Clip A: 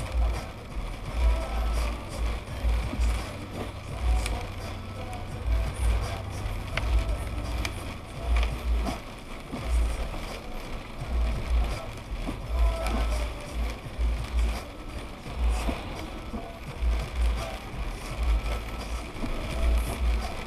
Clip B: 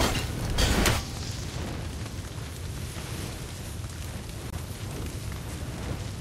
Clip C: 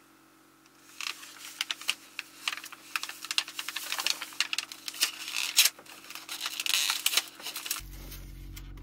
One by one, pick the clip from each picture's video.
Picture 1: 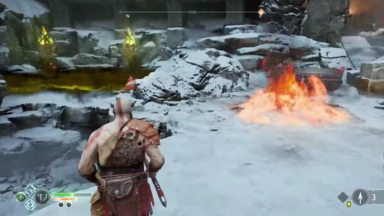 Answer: B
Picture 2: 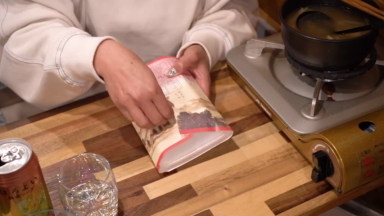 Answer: C